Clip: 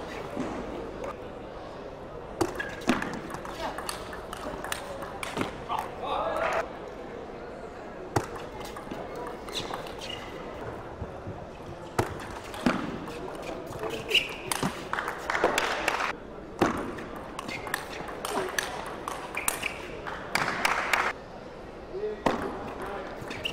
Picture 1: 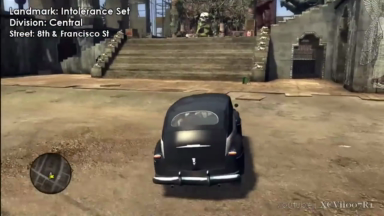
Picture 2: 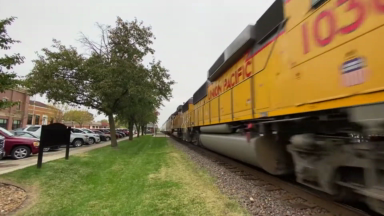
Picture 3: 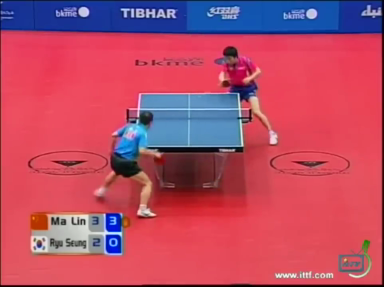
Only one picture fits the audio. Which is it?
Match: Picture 3